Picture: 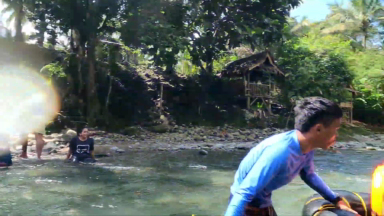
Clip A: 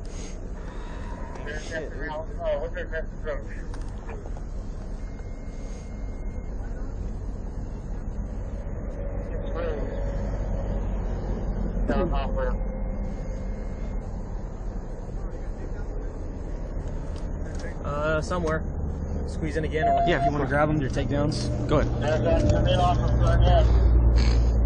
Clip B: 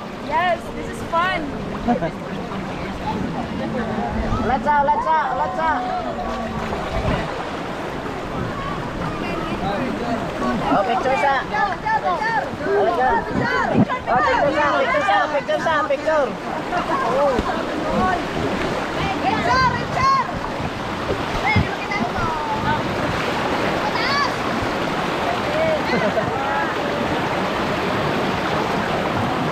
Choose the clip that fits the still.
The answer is B